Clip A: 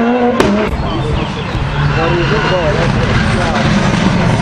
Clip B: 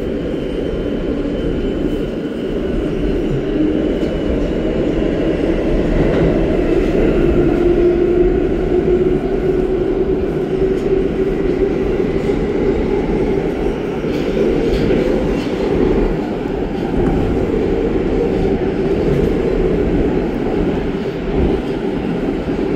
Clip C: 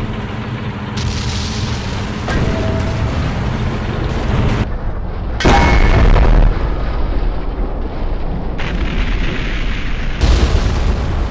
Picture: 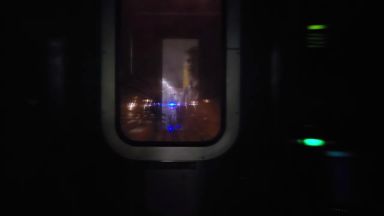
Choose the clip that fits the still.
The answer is B